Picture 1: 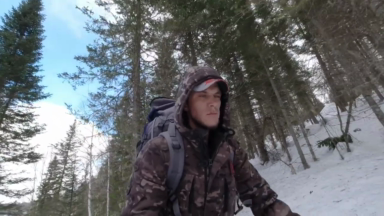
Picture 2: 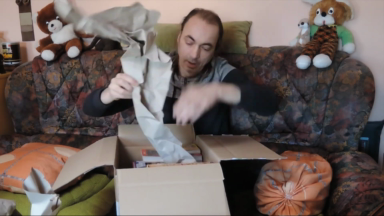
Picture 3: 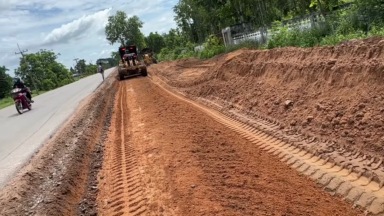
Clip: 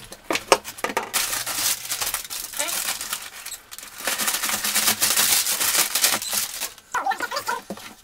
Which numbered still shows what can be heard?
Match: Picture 2